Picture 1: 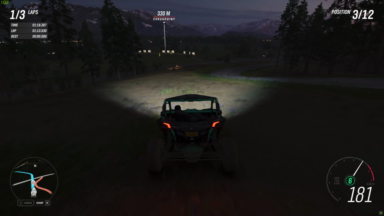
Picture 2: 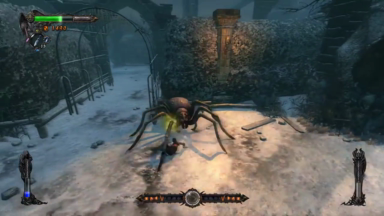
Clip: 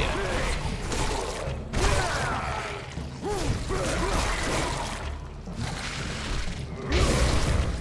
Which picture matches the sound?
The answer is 2